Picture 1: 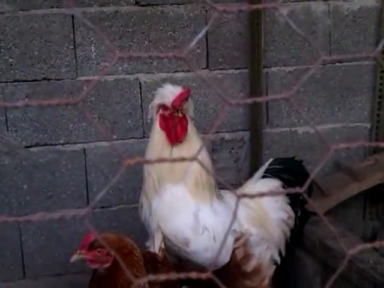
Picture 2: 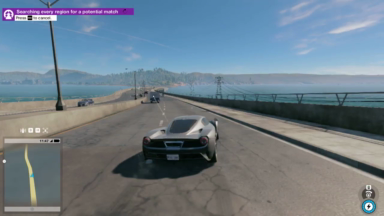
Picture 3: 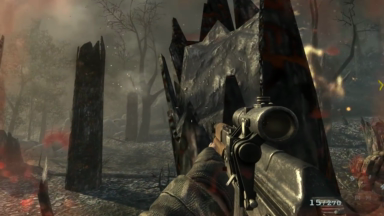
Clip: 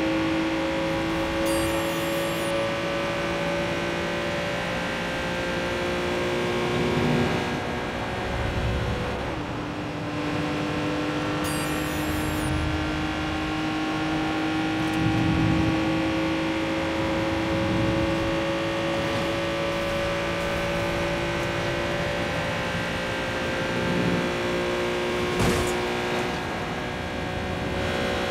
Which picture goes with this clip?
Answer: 2